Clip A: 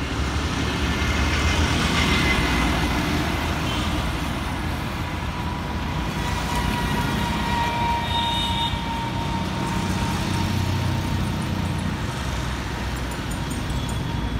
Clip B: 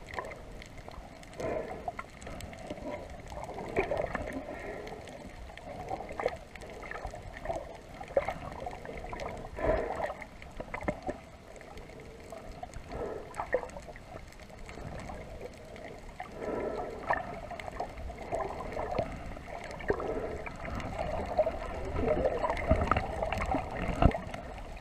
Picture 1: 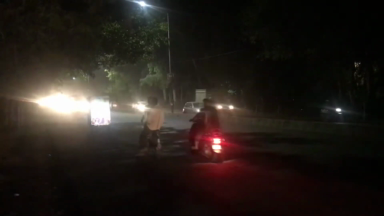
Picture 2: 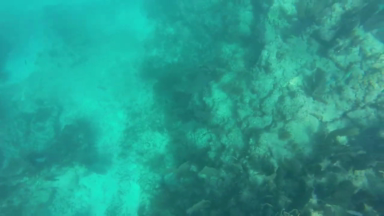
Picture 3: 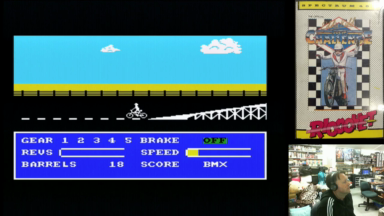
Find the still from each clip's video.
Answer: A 1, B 2